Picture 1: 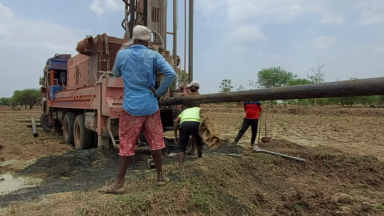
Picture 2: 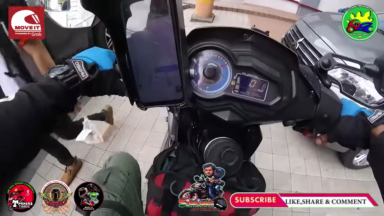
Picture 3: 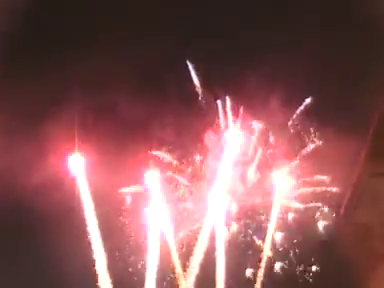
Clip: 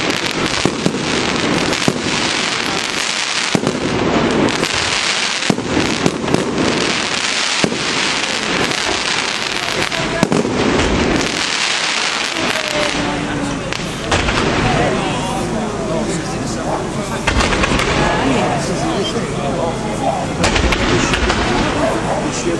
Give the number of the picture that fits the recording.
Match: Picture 3